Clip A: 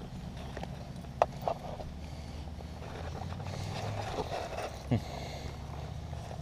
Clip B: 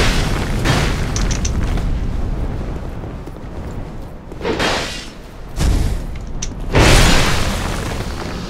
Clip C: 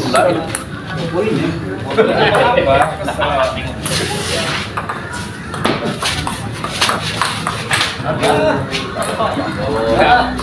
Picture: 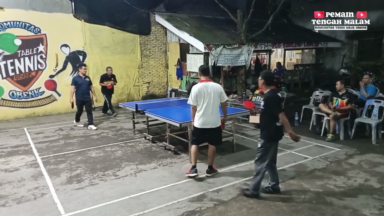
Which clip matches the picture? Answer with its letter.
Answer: C